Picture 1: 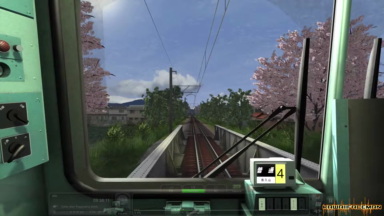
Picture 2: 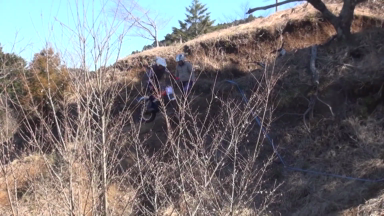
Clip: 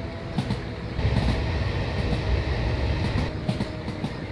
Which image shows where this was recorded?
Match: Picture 1